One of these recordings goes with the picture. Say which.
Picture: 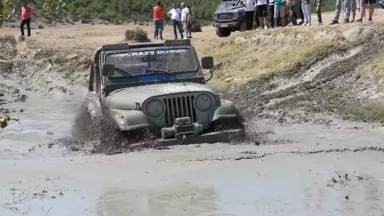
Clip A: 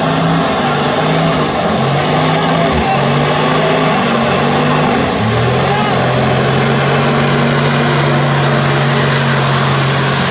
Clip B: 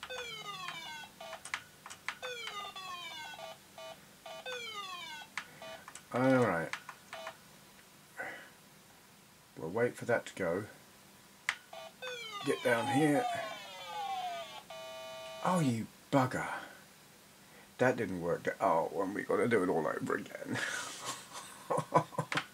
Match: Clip A